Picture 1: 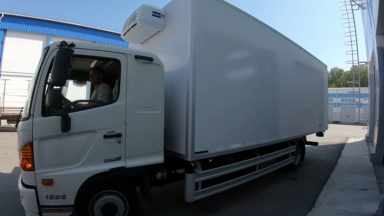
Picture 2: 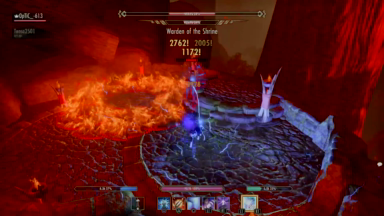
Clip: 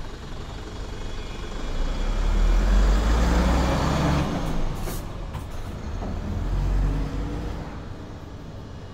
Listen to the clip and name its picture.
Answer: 1